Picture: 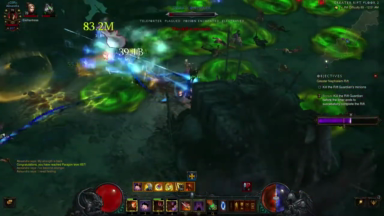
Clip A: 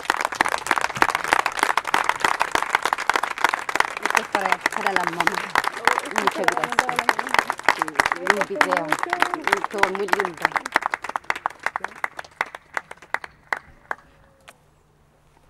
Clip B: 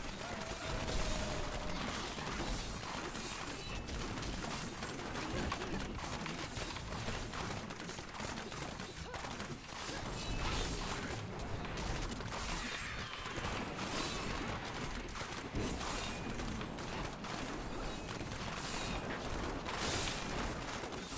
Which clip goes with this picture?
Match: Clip B